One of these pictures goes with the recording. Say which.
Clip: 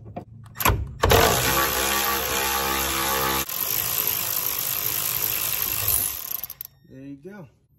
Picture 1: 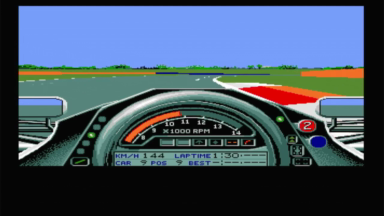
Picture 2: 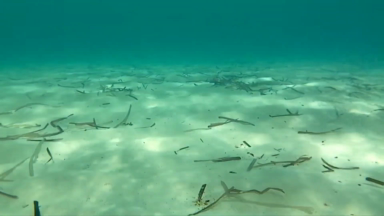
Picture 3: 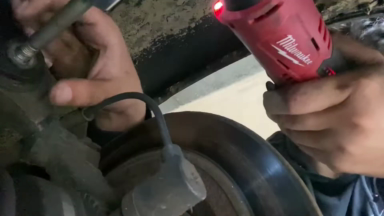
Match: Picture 3